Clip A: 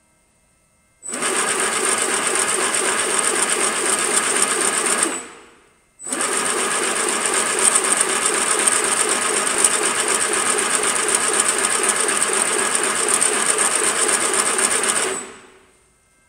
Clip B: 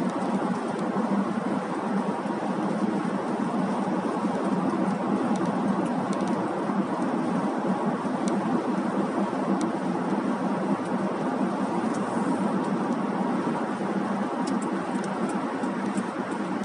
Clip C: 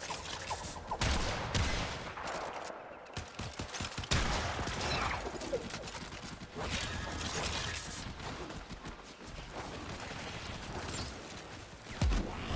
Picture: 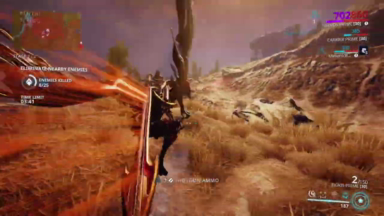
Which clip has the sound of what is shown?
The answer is C